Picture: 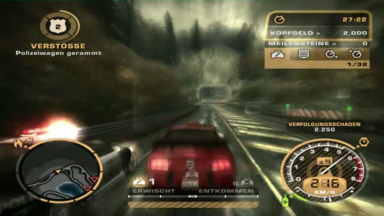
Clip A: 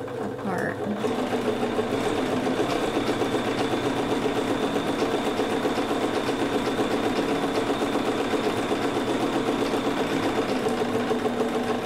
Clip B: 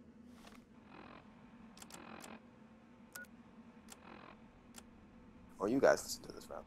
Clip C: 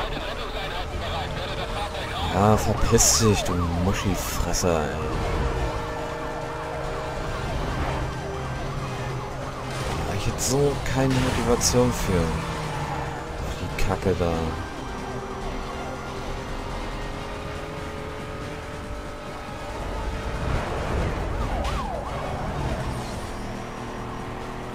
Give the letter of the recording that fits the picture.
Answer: C